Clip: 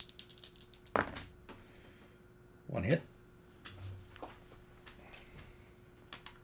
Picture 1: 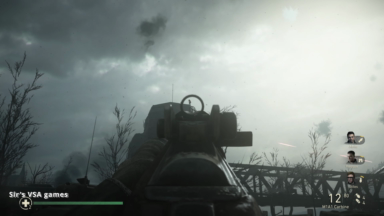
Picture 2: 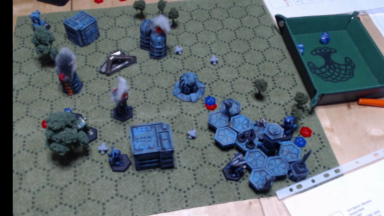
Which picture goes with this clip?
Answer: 2